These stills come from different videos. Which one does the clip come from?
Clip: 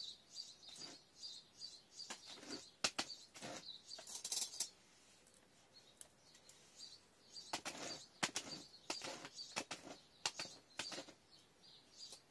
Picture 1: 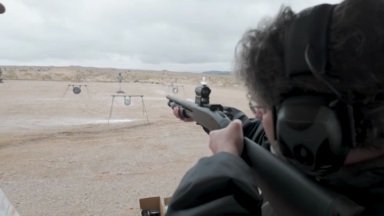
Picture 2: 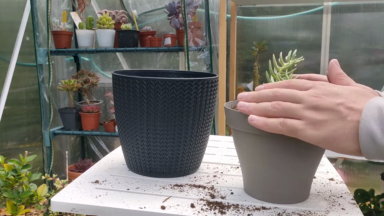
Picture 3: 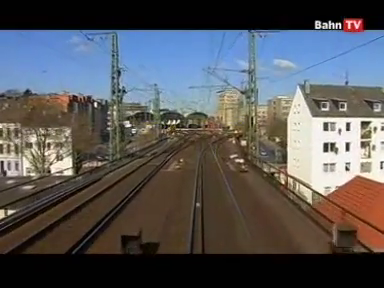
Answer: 2